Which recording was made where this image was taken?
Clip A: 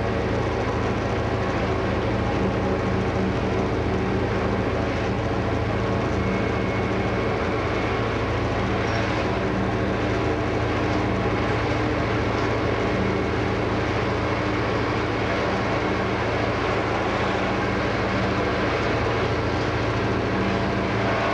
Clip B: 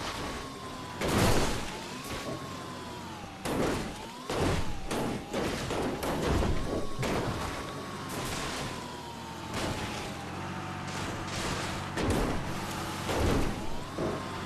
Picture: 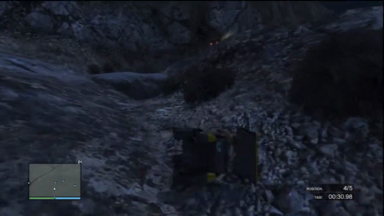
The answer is B